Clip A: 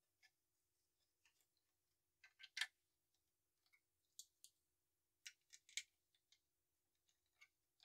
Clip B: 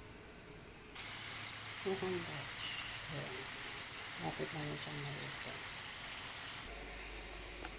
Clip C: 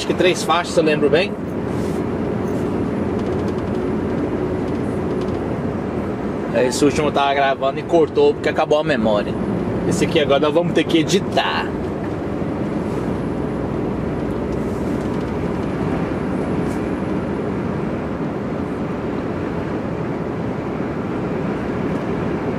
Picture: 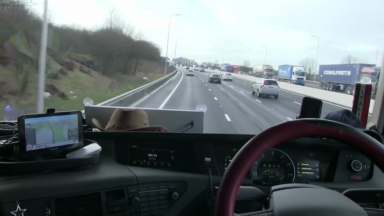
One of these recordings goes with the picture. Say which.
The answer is C